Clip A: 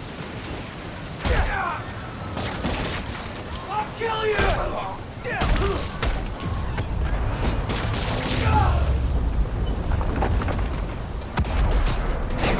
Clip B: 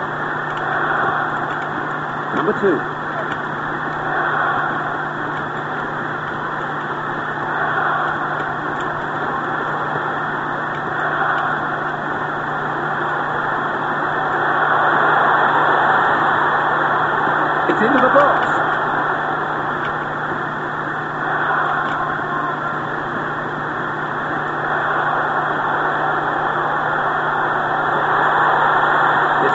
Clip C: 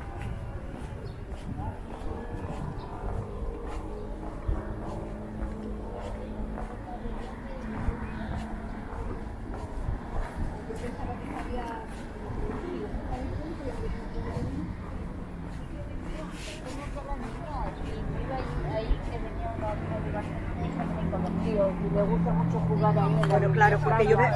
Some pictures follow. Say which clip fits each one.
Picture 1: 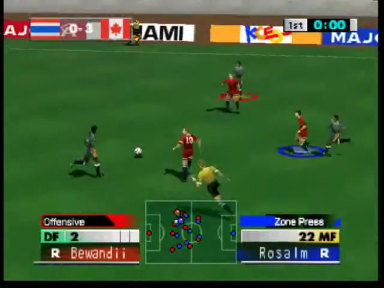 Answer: B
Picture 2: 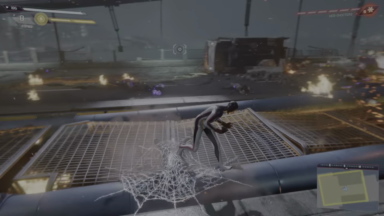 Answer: A